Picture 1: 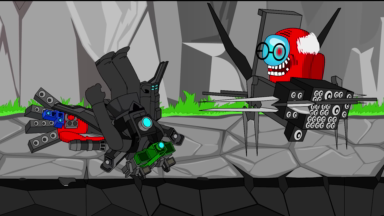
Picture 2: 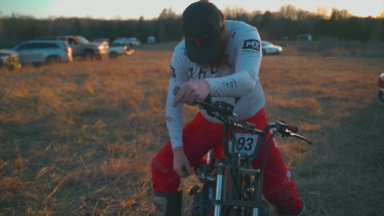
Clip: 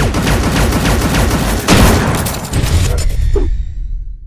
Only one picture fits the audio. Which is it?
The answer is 1